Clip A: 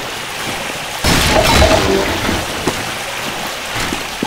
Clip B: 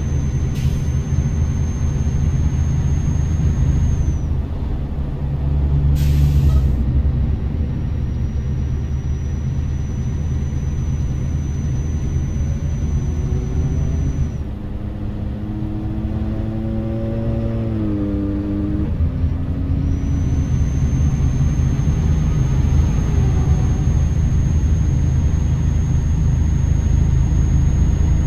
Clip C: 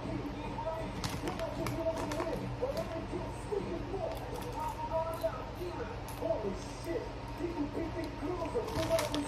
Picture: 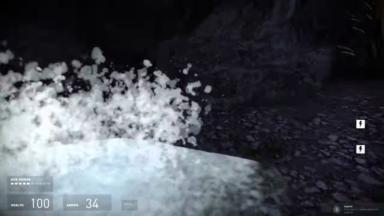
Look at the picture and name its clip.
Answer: A